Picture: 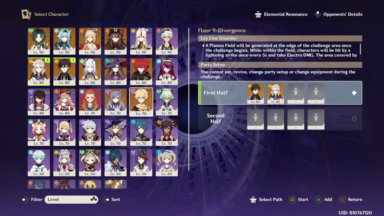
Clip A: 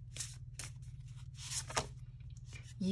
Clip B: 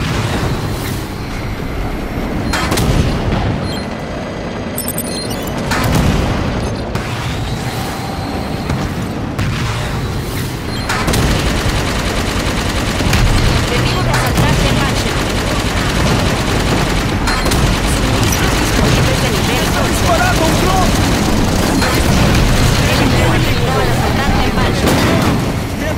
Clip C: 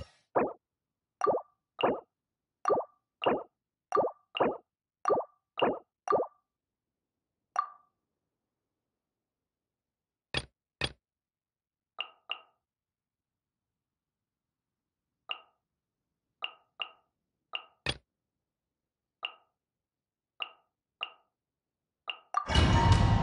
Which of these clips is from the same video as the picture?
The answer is C